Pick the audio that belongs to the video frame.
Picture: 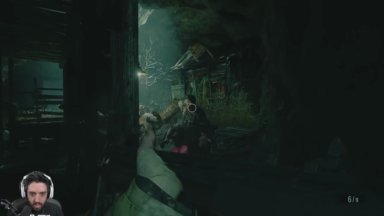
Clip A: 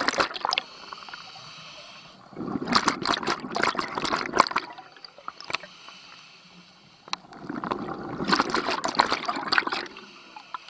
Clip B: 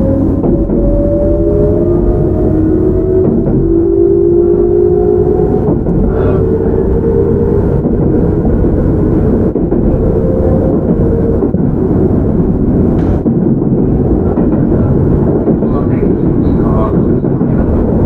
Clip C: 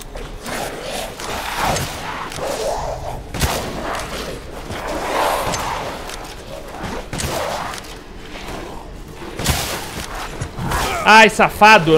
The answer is C